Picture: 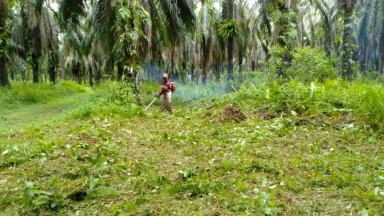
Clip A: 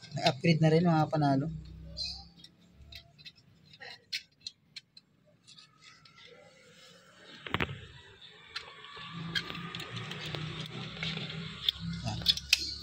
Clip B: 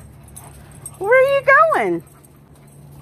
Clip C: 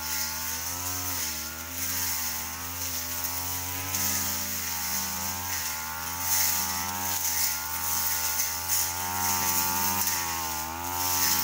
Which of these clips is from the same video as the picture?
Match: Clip C